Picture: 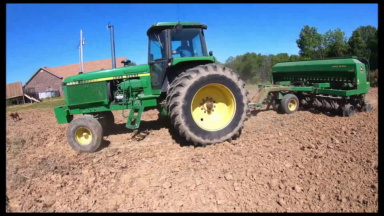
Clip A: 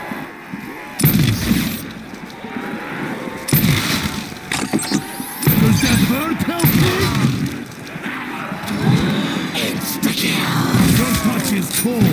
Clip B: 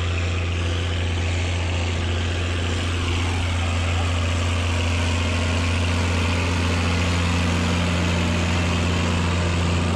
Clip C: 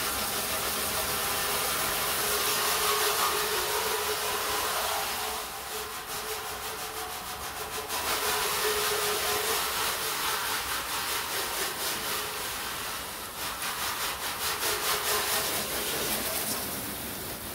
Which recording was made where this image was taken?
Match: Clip B